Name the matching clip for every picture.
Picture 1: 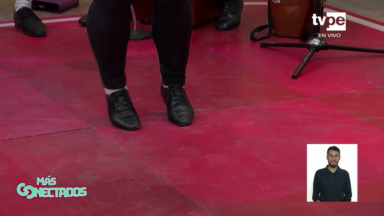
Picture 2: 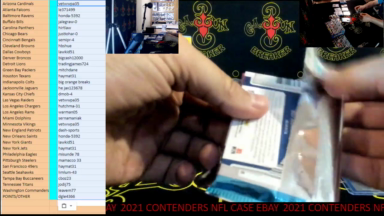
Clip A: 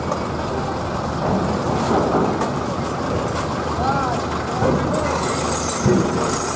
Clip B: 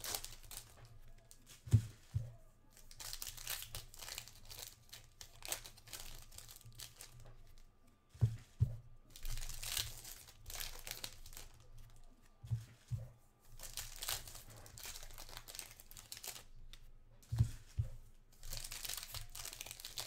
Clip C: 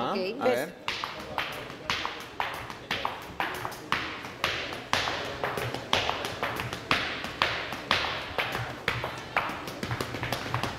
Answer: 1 C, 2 B